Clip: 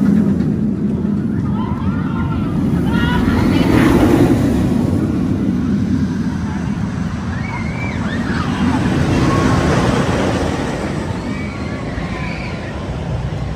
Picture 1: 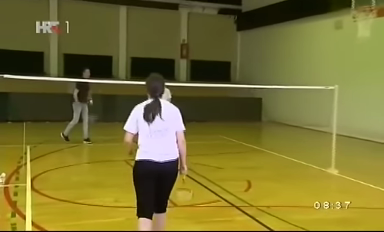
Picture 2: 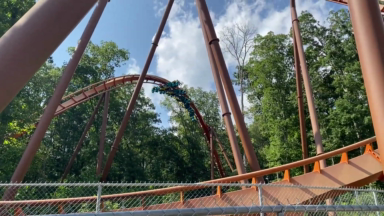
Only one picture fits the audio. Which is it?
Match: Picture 2